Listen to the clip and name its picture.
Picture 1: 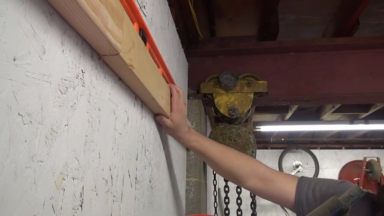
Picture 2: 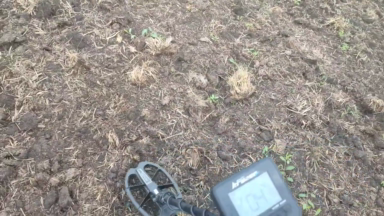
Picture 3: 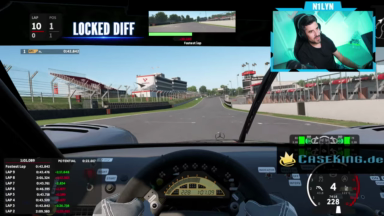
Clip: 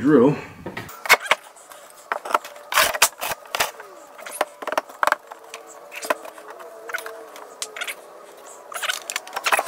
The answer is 1